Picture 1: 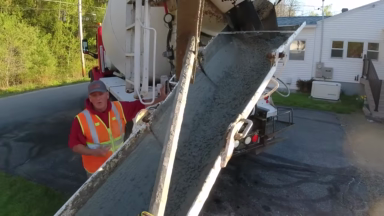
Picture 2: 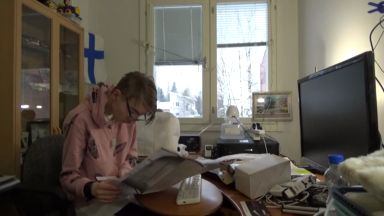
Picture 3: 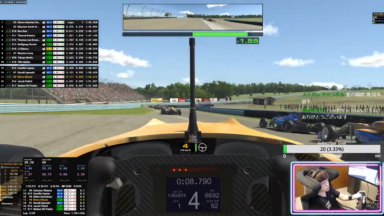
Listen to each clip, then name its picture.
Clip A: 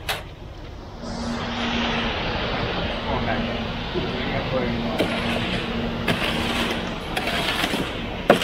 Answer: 1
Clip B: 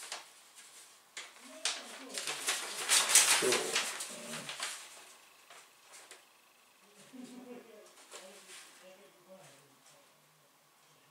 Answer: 2